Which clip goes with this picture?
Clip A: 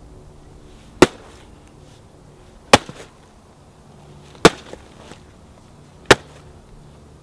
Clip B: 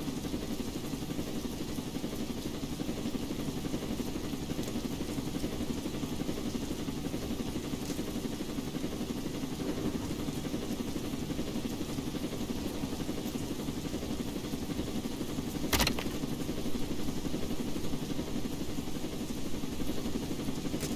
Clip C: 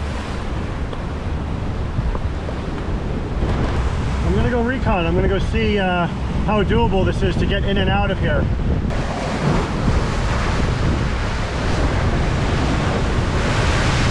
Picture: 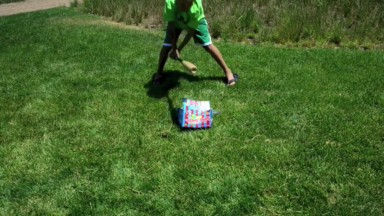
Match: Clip A